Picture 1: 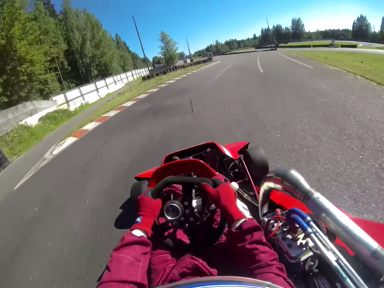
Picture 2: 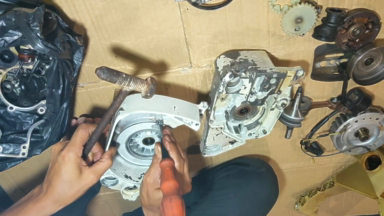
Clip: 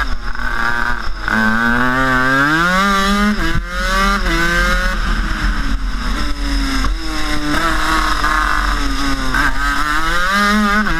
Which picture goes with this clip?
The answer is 1